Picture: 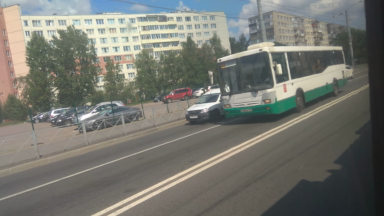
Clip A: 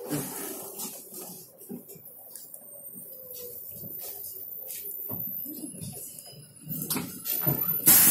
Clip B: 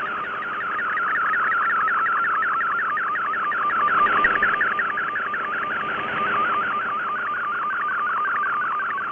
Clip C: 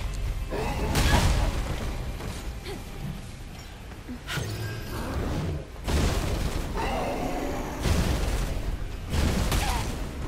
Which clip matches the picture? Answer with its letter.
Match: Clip A